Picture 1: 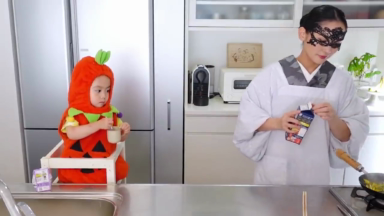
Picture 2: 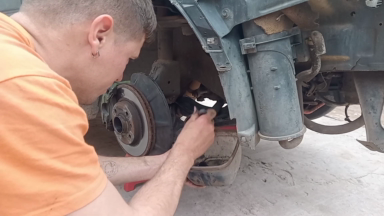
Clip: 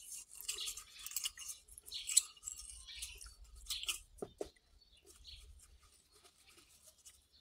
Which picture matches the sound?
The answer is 2